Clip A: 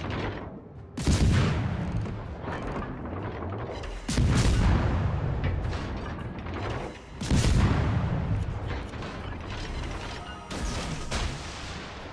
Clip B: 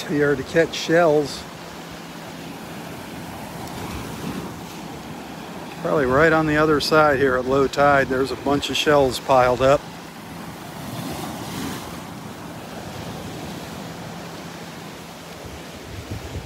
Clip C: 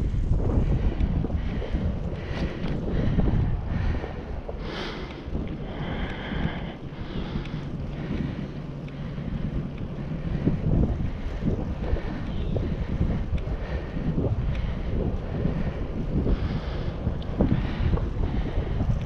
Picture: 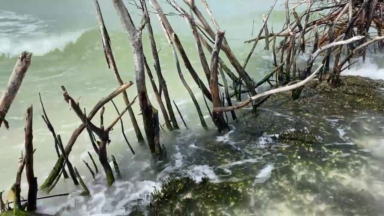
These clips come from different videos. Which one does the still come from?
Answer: B